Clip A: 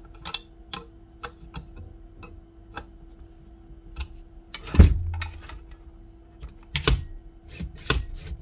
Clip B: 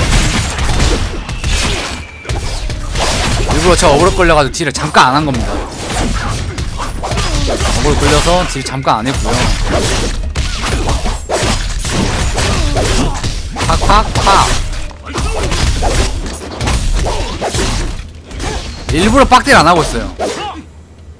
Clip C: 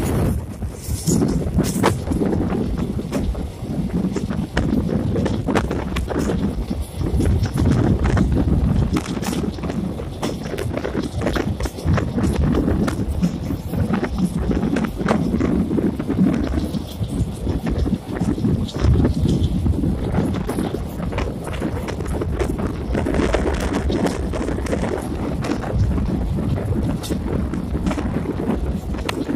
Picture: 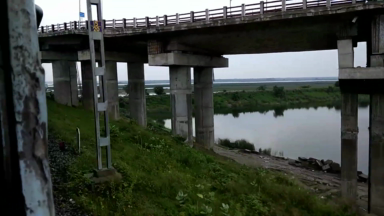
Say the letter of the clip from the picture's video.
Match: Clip C